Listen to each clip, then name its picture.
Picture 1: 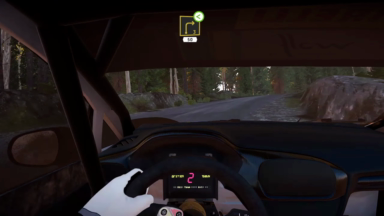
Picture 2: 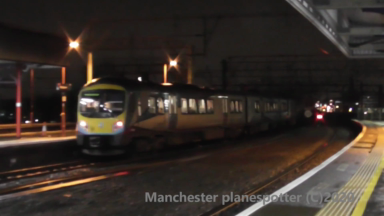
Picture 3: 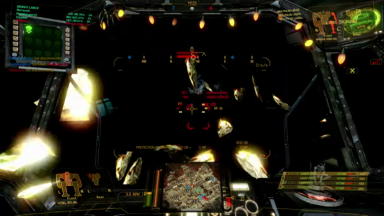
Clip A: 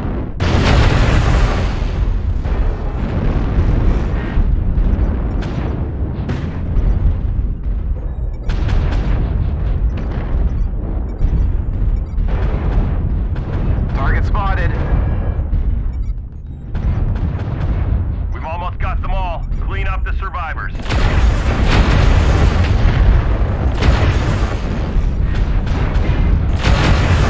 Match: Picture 3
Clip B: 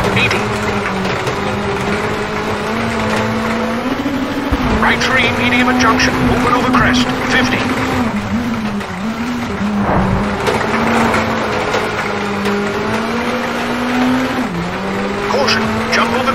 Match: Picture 1